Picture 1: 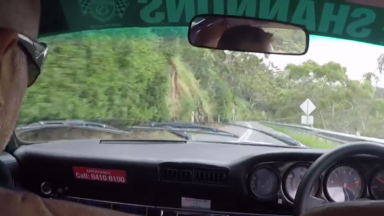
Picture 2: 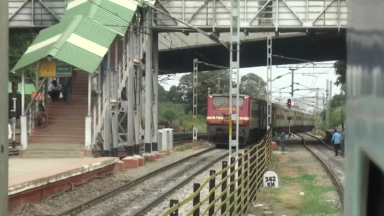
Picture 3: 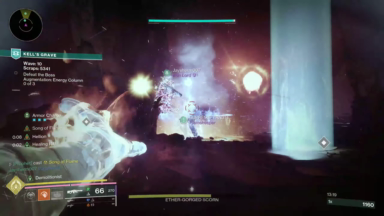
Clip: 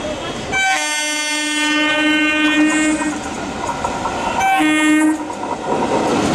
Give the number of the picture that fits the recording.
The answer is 2